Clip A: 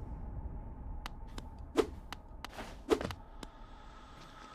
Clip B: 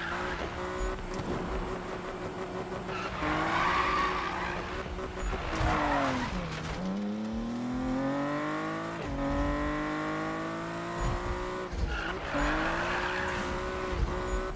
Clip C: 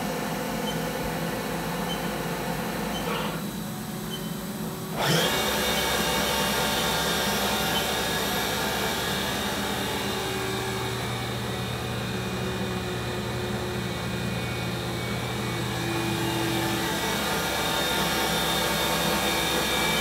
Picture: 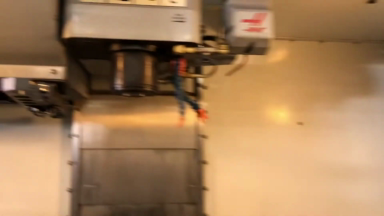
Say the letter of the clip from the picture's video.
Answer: C